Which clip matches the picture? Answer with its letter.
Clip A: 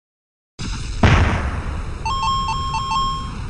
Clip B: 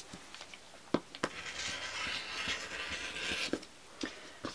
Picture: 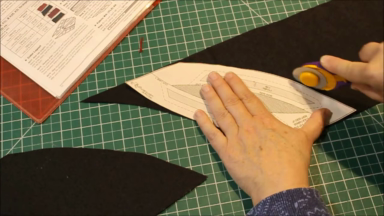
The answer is B